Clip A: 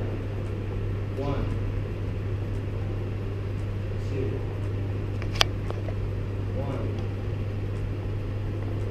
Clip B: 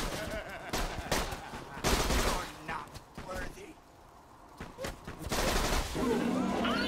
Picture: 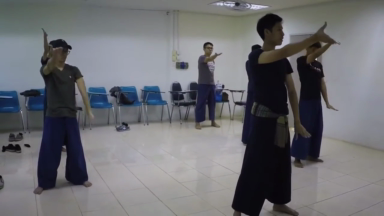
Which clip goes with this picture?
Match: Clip A